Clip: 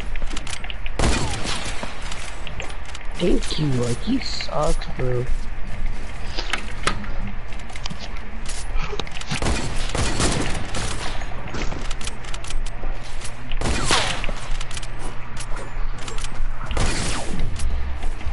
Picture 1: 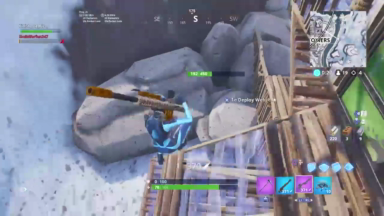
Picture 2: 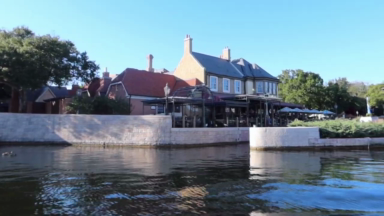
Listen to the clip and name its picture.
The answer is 1